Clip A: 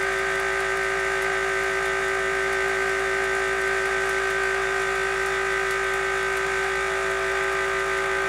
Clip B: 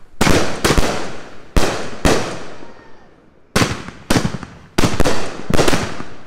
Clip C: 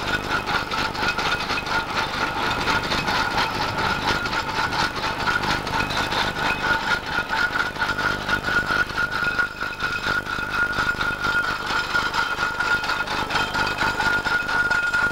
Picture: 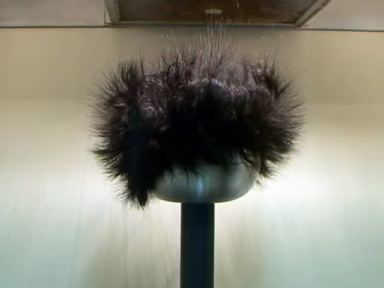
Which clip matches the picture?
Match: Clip A